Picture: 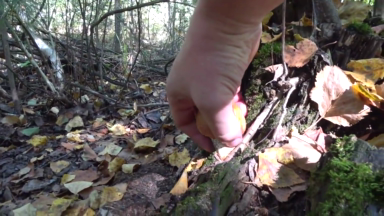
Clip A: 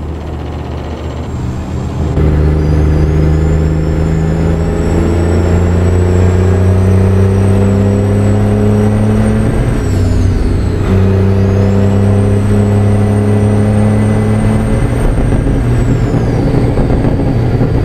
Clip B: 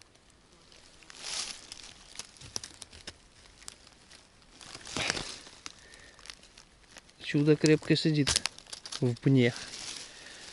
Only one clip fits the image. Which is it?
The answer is B